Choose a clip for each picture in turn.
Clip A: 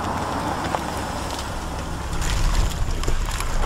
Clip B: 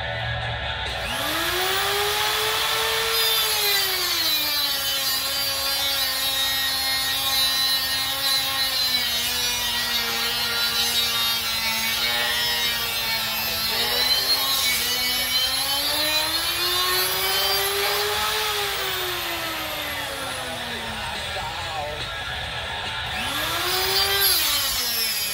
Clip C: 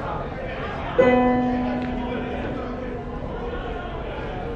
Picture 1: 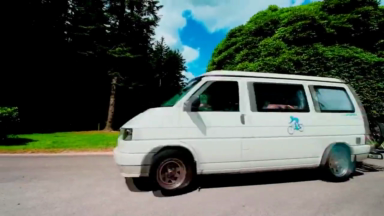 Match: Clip A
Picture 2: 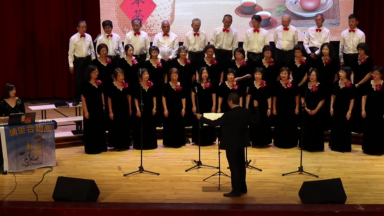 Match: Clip C